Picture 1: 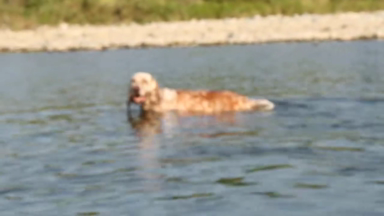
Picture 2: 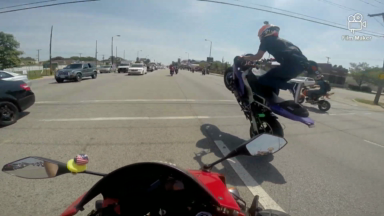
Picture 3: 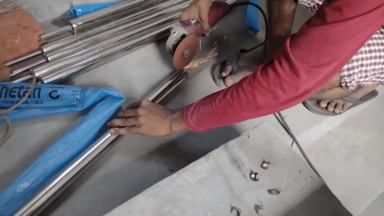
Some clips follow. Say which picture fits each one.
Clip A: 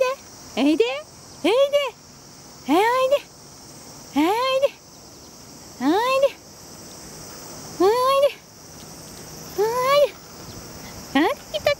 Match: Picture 1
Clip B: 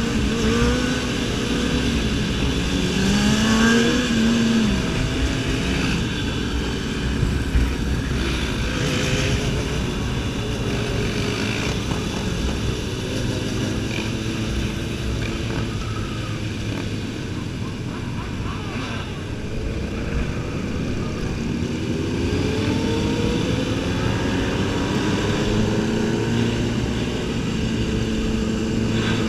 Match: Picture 2